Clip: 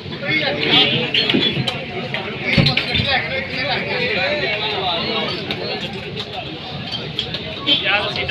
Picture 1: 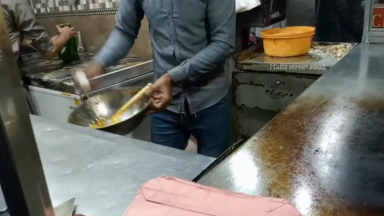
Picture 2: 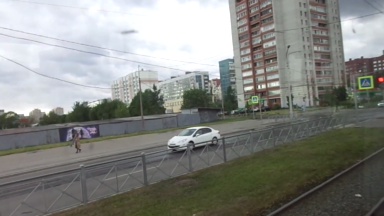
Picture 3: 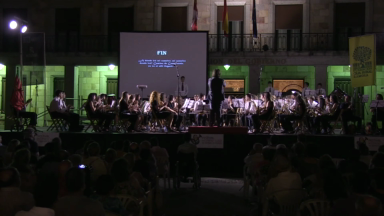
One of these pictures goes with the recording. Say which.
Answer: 1